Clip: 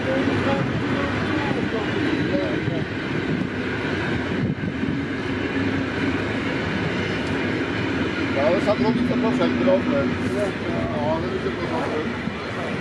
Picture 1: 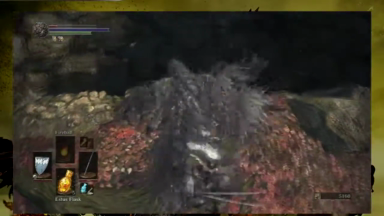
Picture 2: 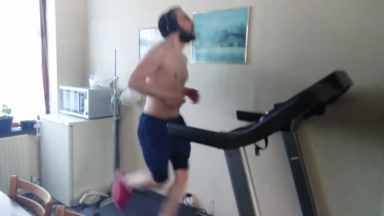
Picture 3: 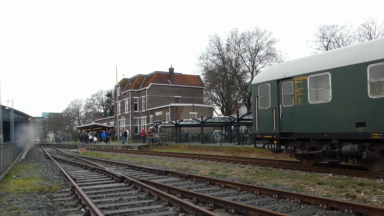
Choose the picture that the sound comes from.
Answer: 3